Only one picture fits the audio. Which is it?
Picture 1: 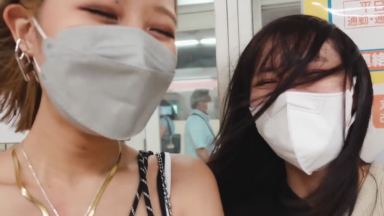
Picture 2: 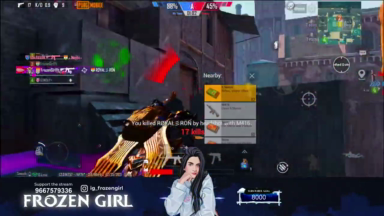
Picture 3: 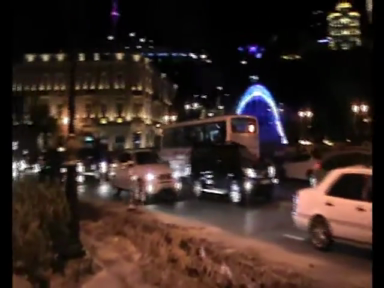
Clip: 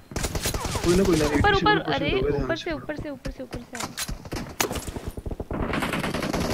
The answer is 2